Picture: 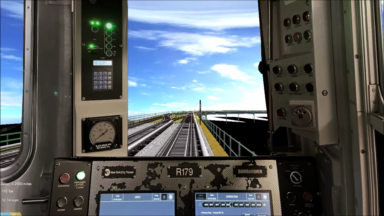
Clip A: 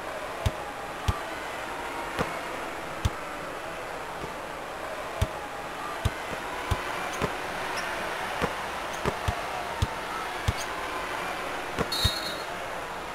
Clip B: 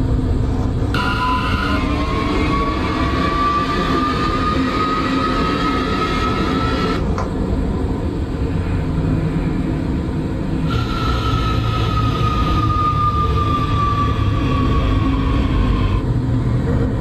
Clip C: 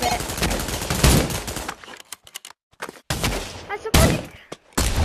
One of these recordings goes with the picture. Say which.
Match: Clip B